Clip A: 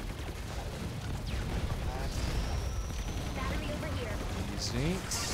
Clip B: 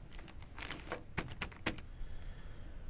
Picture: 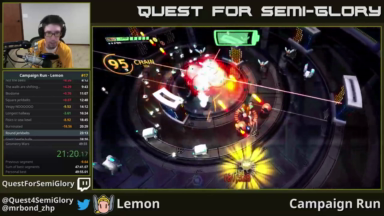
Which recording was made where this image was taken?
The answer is A